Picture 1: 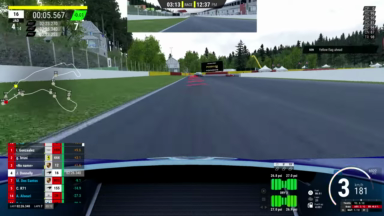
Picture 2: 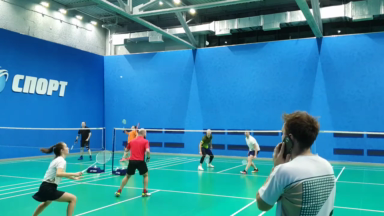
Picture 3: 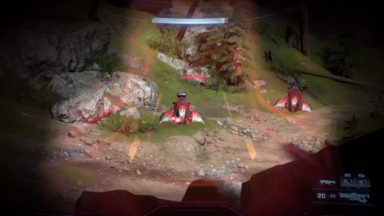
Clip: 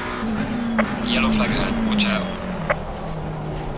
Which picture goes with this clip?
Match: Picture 1